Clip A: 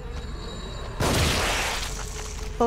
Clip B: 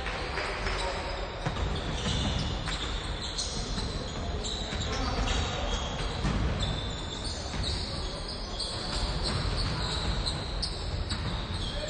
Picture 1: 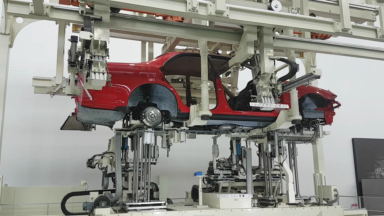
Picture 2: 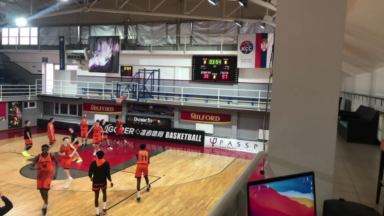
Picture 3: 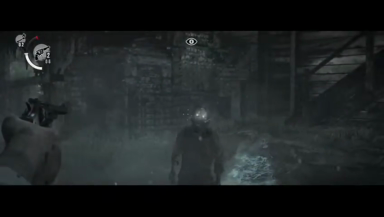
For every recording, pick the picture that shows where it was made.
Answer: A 3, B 2